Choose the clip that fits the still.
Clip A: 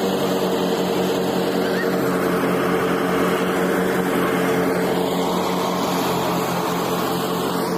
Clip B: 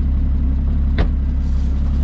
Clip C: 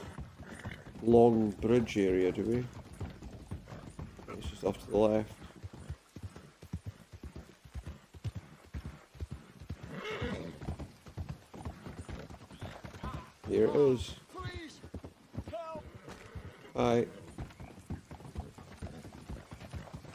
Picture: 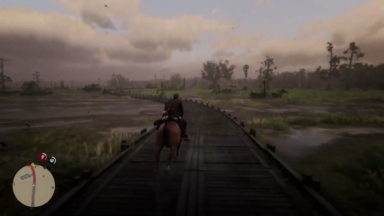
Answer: C